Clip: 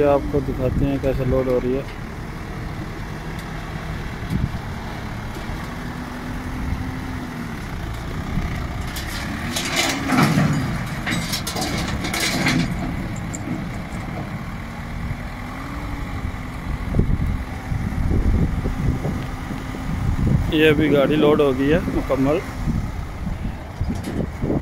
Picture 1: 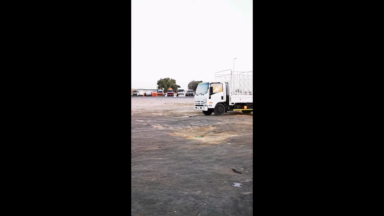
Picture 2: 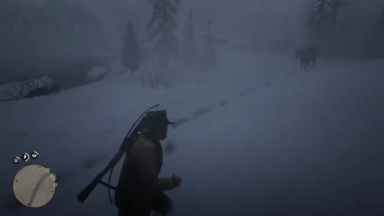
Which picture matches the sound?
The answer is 1